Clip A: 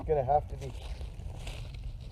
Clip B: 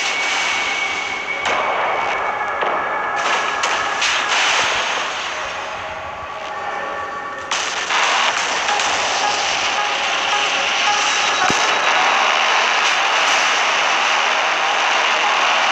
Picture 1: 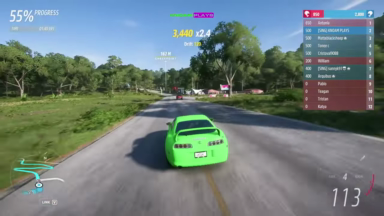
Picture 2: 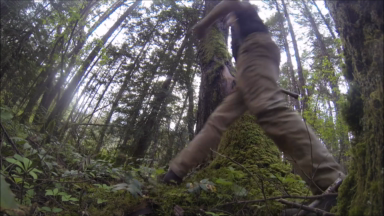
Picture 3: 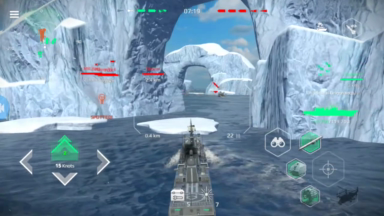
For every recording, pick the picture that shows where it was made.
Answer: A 2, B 3